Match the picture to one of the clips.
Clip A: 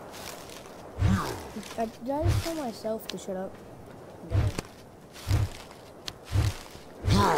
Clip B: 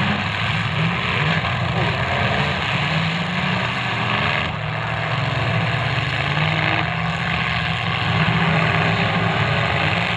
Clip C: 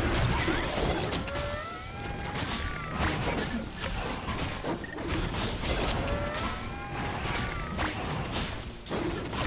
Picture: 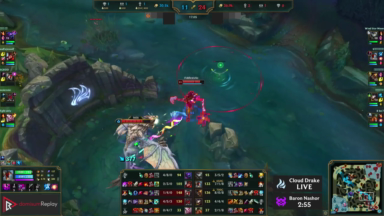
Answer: C